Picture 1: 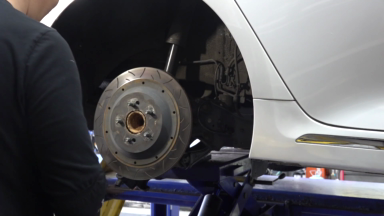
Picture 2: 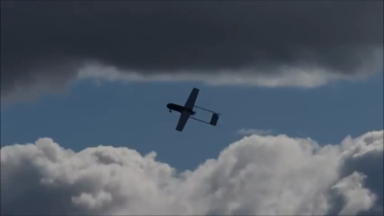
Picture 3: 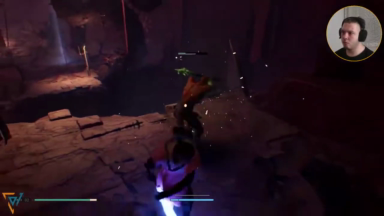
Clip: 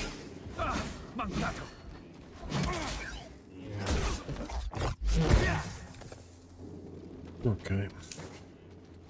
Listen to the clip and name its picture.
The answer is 3